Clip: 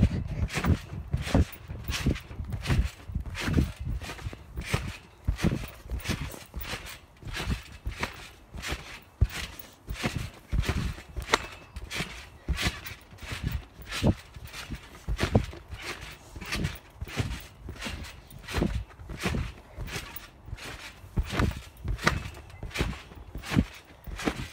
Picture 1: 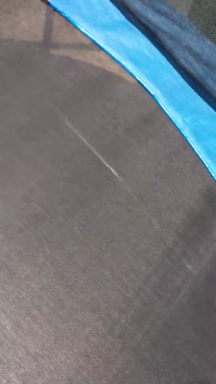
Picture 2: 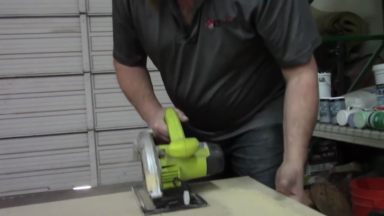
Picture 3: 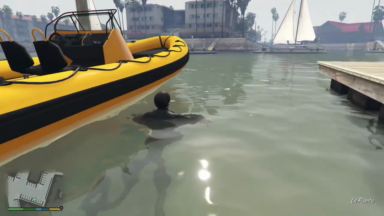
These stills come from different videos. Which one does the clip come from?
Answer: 1